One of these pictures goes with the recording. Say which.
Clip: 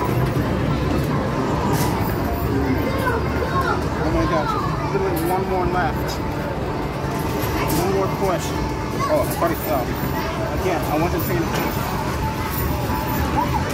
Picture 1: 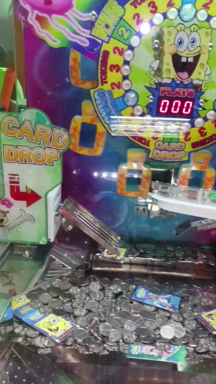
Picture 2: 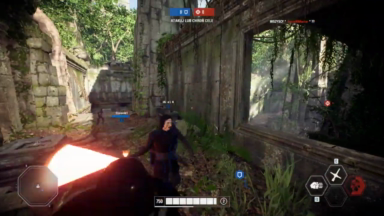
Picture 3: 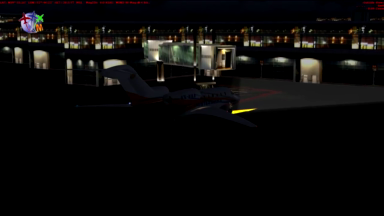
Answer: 1